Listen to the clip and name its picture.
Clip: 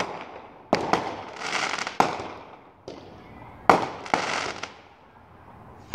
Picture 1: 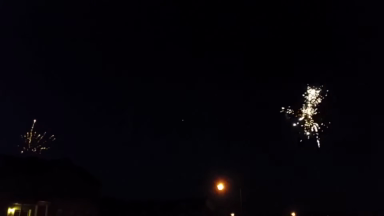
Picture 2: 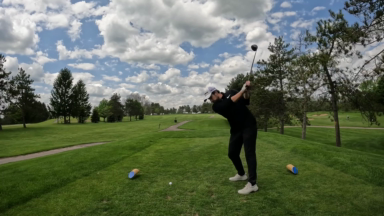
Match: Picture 1